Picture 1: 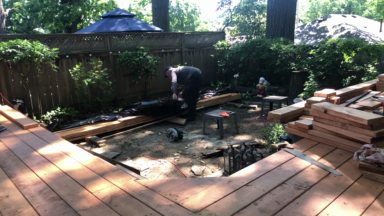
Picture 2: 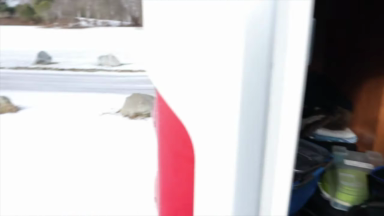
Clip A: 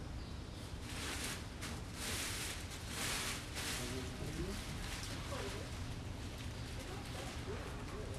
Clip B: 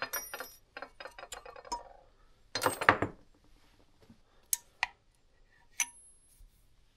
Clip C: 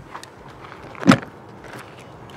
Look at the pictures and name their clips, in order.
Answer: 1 A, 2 C